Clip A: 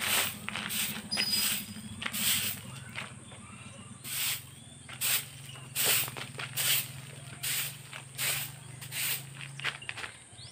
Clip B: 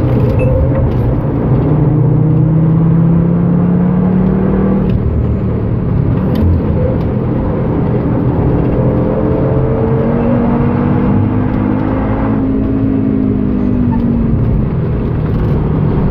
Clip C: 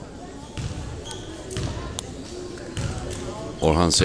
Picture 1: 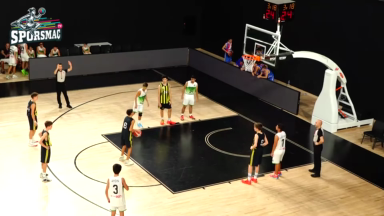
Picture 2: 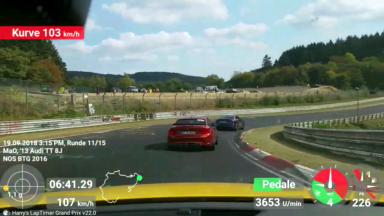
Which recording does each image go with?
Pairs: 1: C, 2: B